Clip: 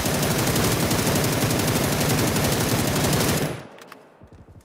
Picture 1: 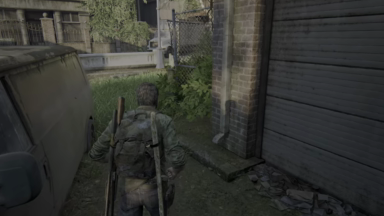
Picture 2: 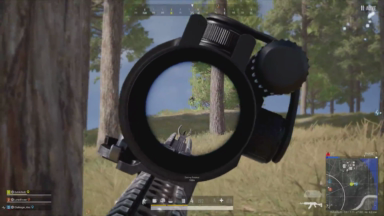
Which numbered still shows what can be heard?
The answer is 2